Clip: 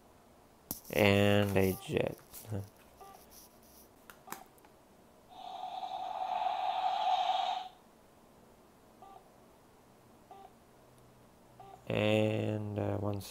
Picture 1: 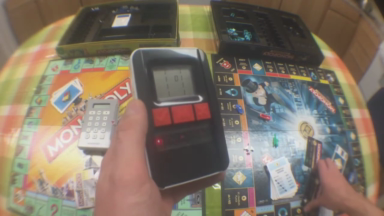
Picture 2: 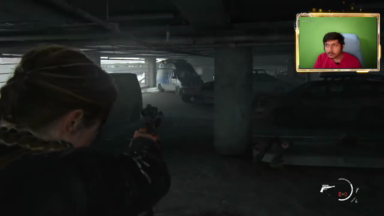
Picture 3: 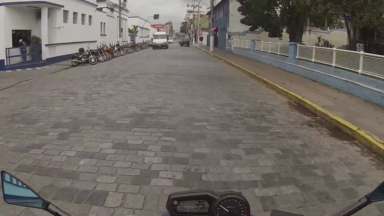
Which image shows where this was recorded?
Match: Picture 1